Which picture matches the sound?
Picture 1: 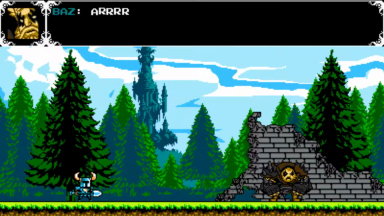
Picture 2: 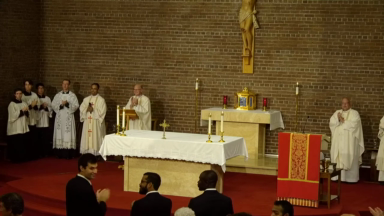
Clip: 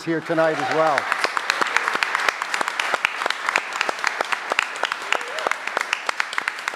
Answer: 2